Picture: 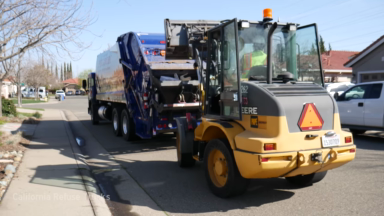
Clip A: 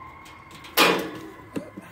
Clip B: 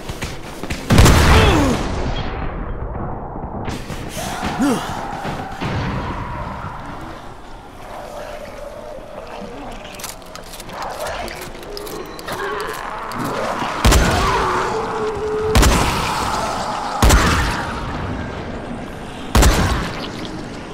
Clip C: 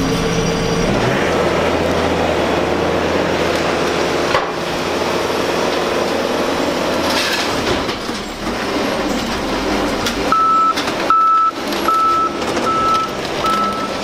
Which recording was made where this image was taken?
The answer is C